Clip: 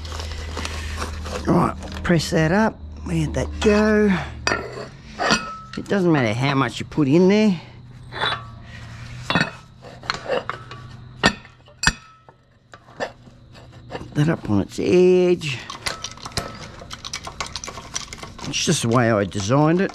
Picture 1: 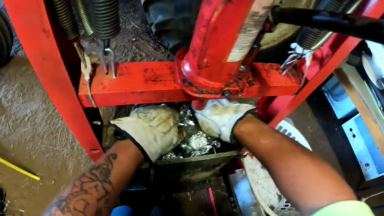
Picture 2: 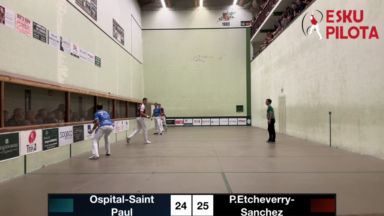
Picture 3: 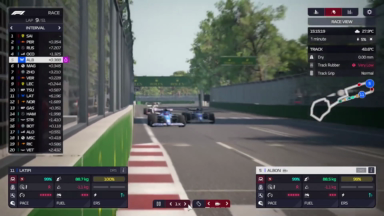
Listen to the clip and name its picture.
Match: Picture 1